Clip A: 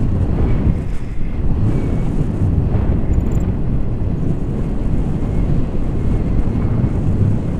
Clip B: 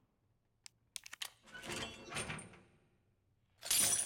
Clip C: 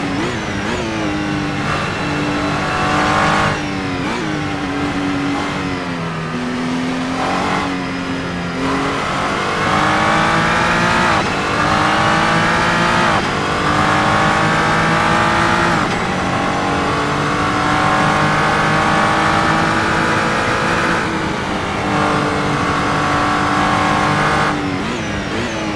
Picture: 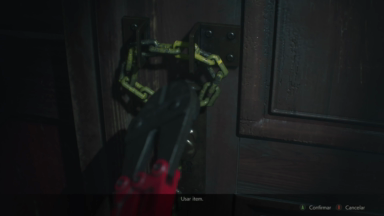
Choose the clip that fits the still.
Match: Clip B